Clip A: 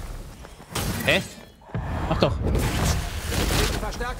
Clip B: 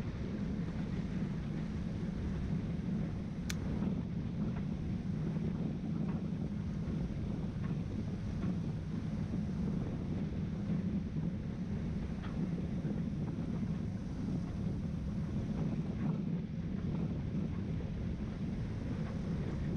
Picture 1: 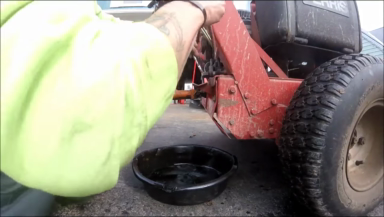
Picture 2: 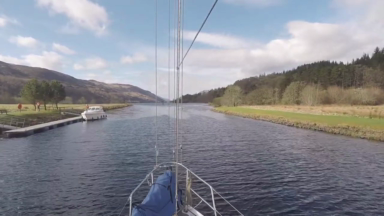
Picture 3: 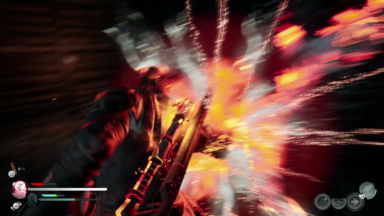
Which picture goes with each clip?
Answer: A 3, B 2